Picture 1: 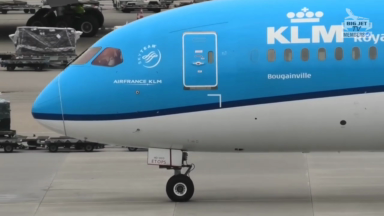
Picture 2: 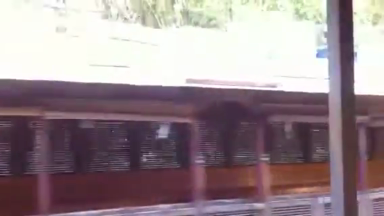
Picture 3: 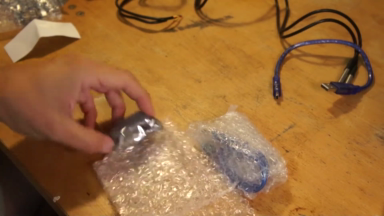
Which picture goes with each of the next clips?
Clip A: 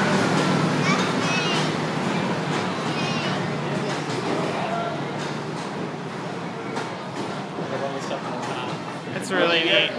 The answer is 2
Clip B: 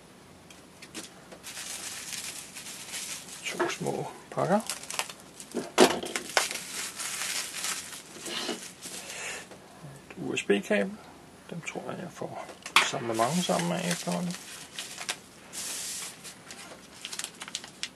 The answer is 3